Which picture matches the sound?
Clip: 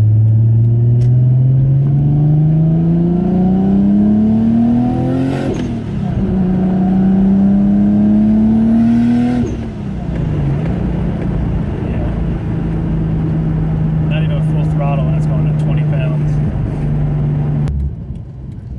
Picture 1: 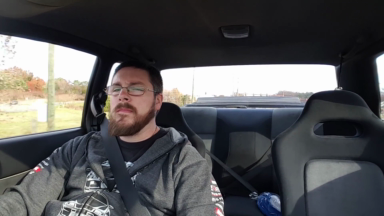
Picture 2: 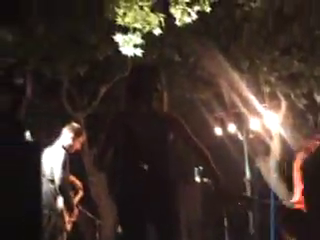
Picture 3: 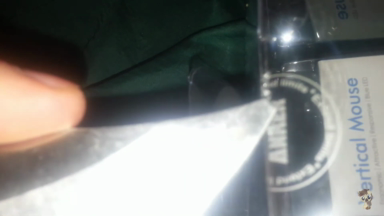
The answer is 1